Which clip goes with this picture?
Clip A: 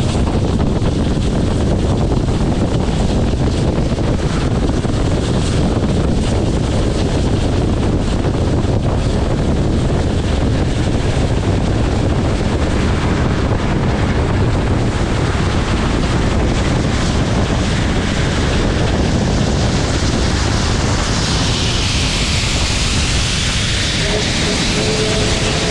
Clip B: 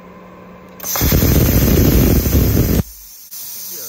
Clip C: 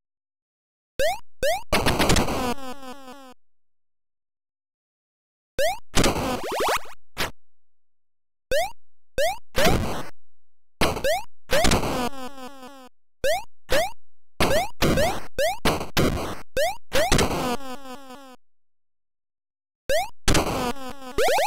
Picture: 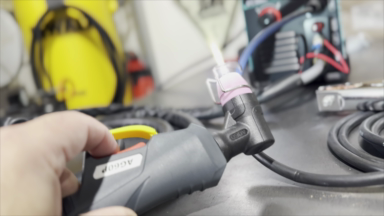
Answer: B